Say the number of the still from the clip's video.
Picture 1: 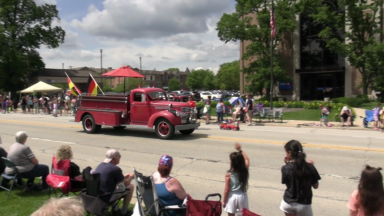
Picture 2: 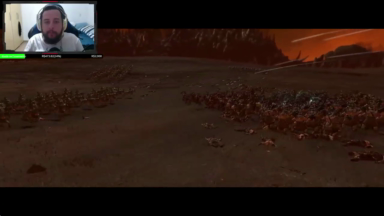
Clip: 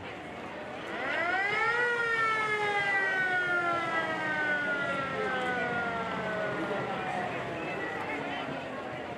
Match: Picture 1